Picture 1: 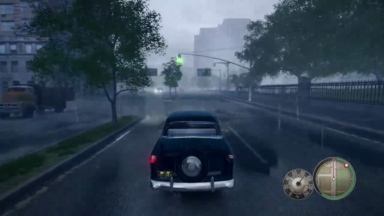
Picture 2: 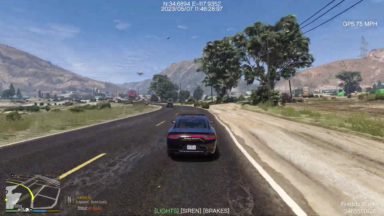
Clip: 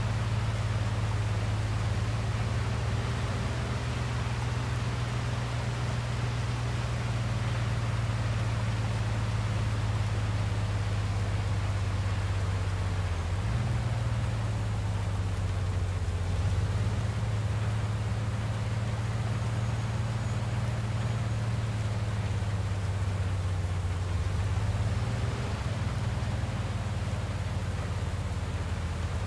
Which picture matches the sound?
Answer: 1